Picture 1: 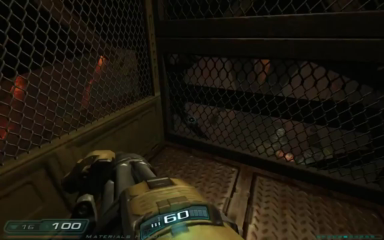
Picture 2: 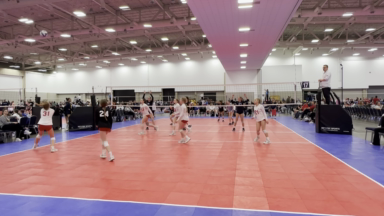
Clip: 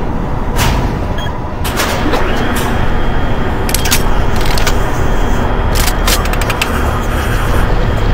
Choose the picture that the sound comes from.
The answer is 1